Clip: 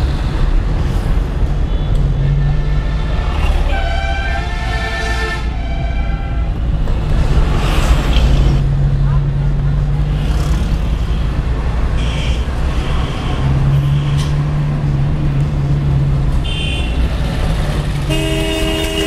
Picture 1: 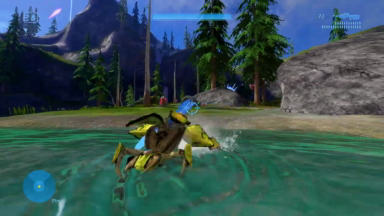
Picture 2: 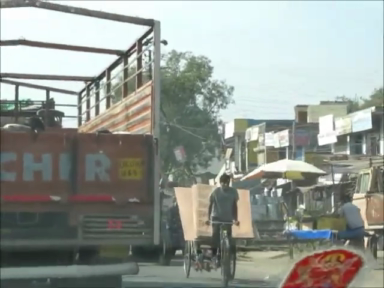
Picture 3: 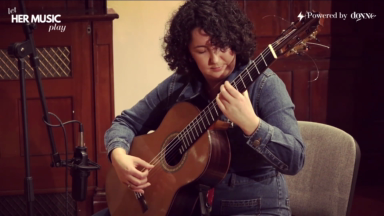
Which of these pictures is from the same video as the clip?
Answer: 2